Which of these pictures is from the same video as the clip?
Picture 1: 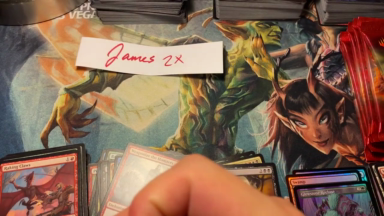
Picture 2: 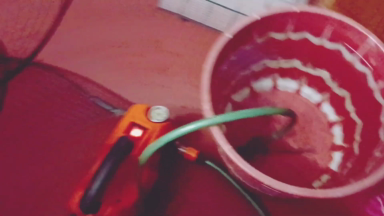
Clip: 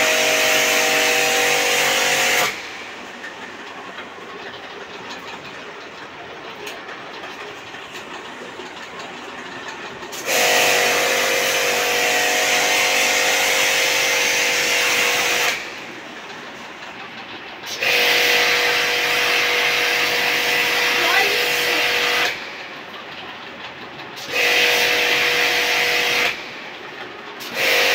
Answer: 2